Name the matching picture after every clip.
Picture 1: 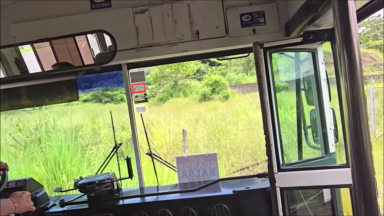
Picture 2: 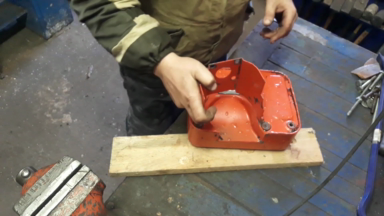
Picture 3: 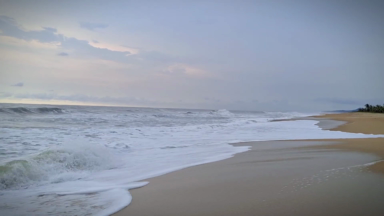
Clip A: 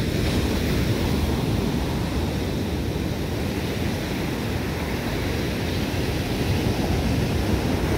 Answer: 3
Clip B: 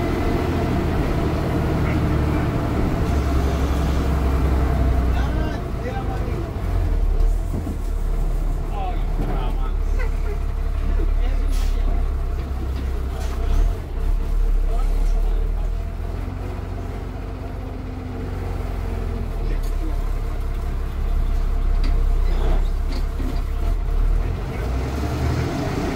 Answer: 1